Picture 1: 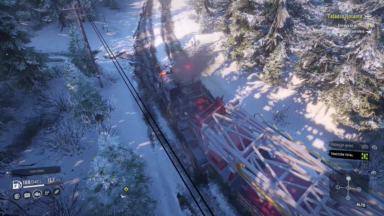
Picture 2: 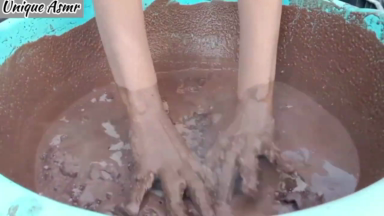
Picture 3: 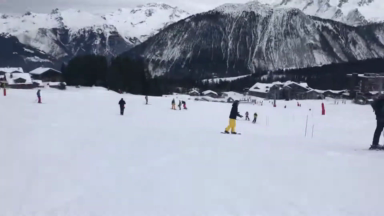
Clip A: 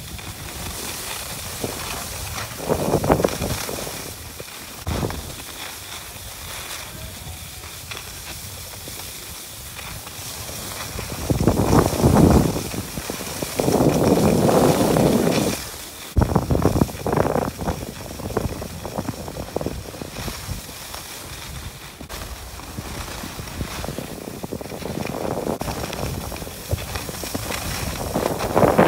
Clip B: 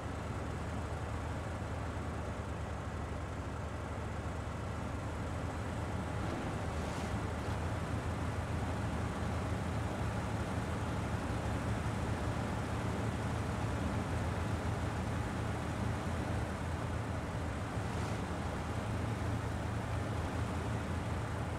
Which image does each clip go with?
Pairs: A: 3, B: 1